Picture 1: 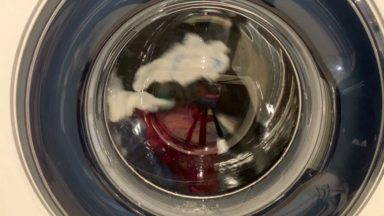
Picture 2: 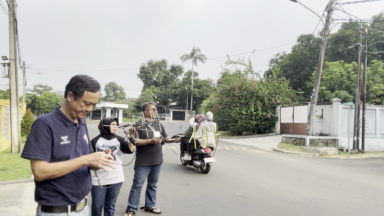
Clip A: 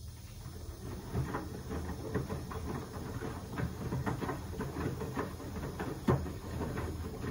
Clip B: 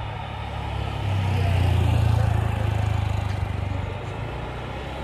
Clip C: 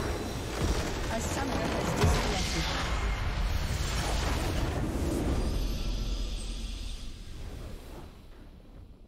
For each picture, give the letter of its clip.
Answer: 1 A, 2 B